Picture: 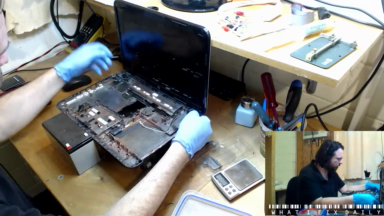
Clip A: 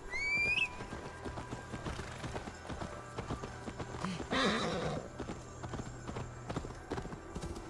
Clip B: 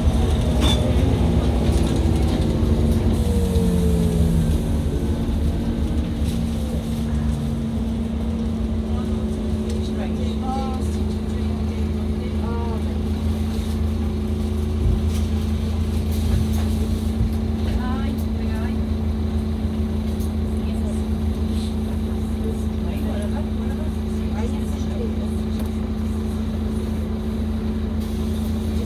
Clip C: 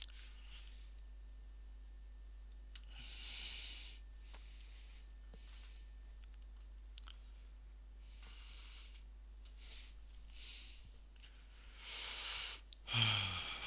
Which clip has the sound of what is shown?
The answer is C